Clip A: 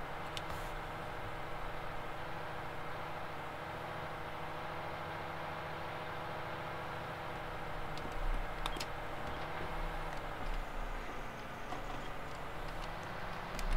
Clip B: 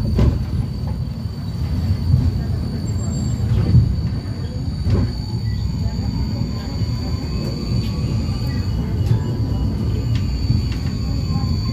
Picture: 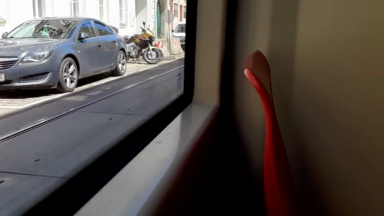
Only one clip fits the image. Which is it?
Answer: B